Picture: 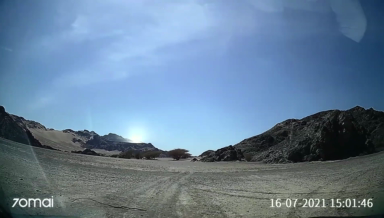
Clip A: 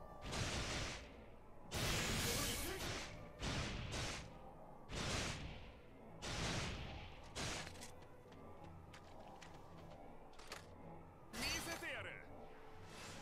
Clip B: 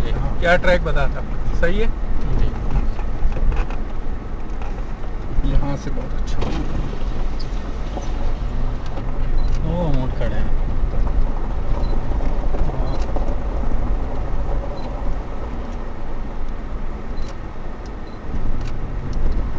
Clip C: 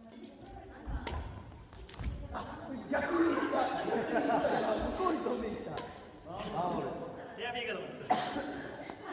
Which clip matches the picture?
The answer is B